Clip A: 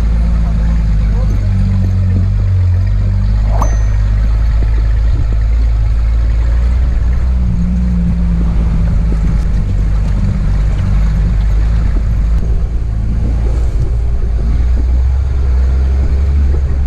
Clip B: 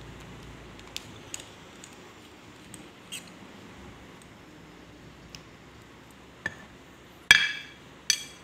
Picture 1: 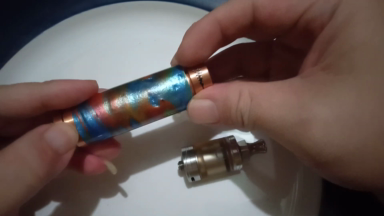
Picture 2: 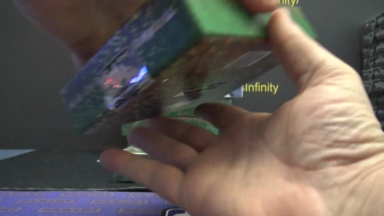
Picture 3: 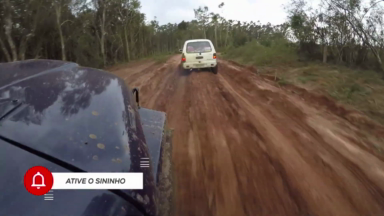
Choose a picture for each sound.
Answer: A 3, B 1